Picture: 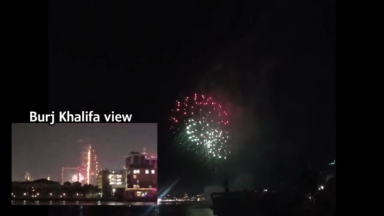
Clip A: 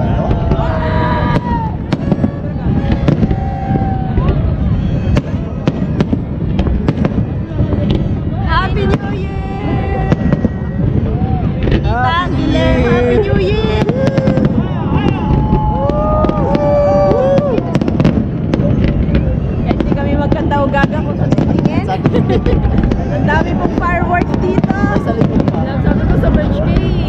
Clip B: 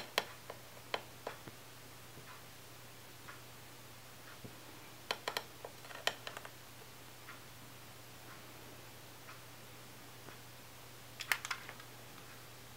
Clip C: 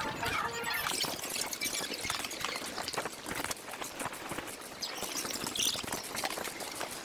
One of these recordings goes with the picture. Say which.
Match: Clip A